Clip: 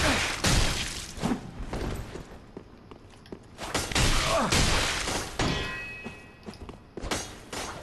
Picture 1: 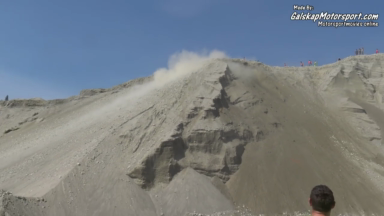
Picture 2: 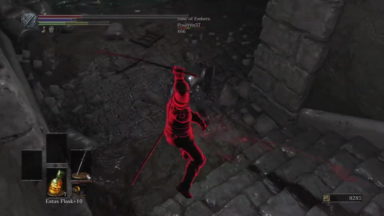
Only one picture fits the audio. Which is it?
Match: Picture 2